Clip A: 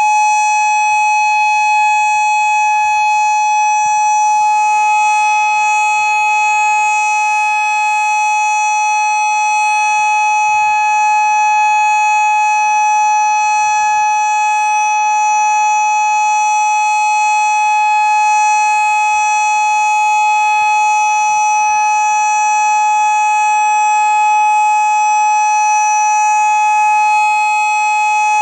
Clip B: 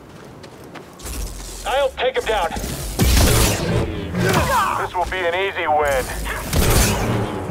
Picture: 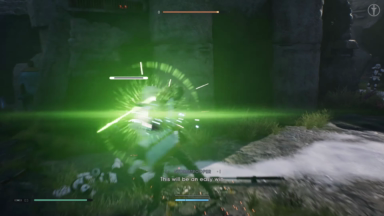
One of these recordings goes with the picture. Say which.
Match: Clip B